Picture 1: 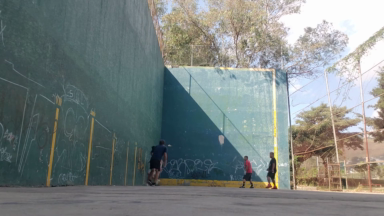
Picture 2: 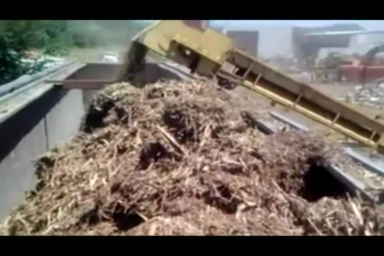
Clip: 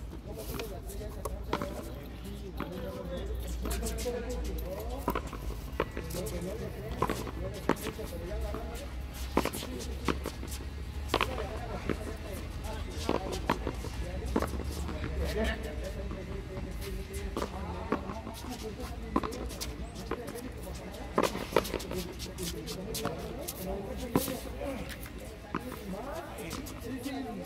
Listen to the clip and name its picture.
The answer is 1